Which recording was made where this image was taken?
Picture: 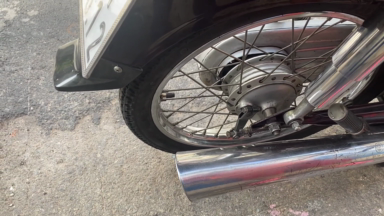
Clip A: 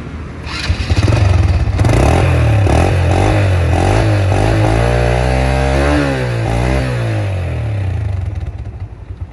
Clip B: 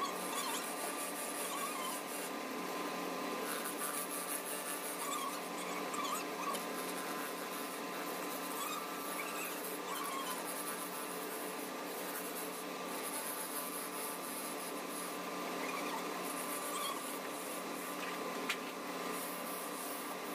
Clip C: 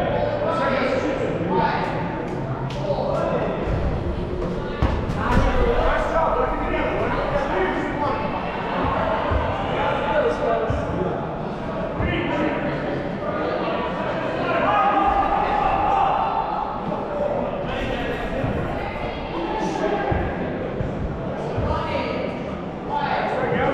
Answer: A